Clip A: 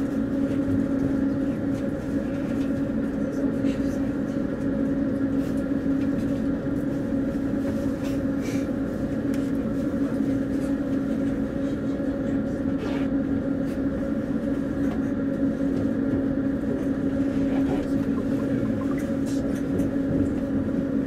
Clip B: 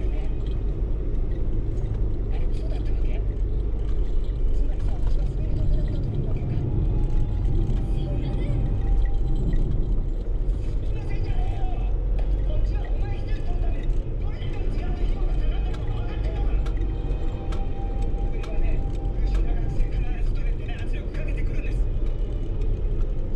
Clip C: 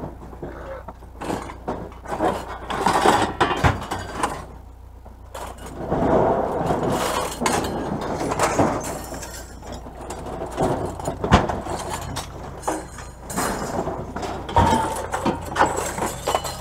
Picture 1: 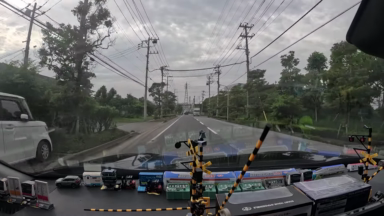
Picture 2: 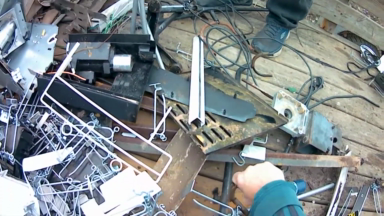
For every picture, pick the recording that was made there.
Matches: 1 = B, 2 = C